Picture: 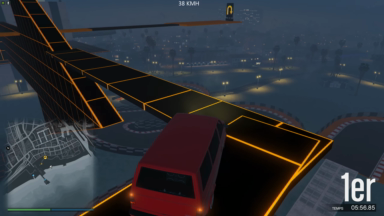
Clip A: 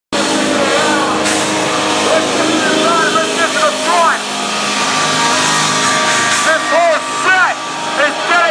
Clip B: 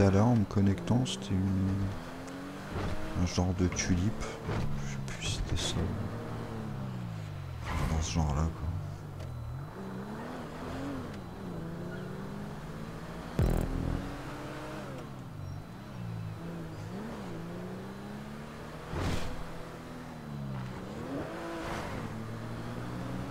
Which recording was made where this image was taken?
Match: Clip B